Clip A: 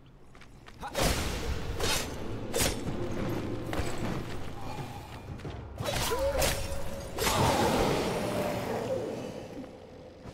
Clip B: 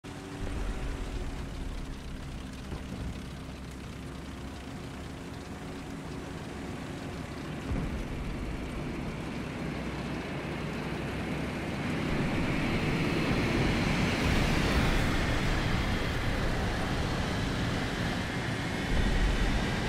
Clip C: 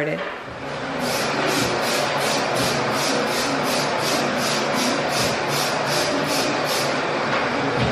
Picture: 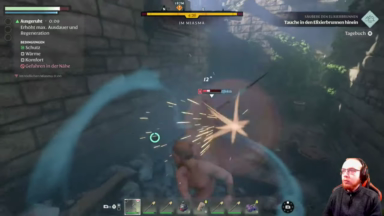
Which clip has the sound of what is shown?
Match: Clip A